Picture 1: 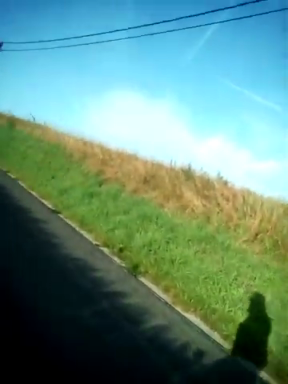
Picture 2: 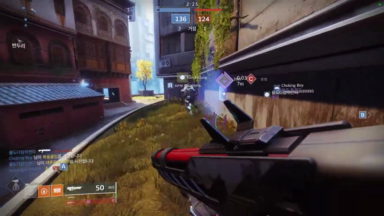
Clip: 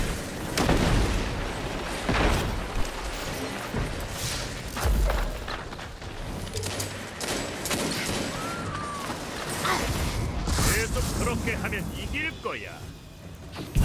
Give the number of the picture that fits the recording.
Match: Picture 2